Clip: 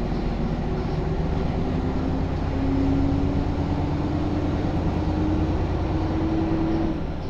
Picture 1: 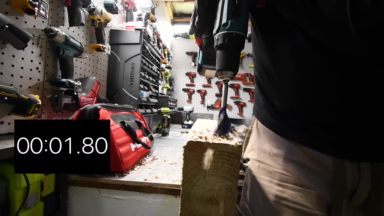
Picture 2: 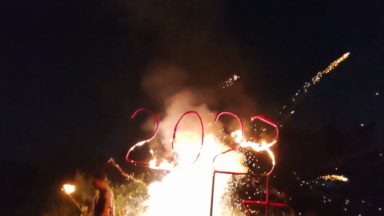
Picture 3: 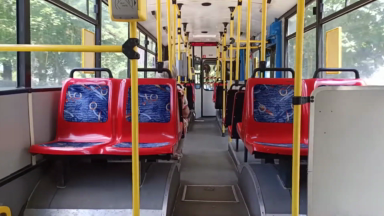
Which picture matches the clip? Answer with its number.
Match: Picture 3